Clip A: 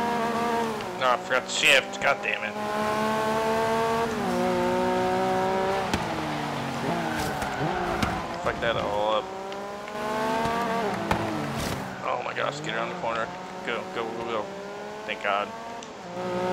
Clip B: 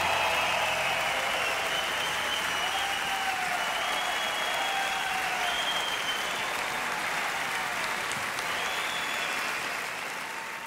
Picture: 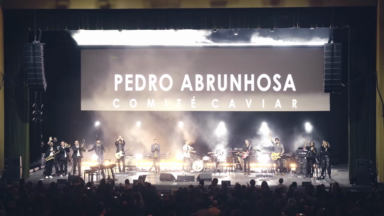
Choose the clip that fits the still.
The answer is B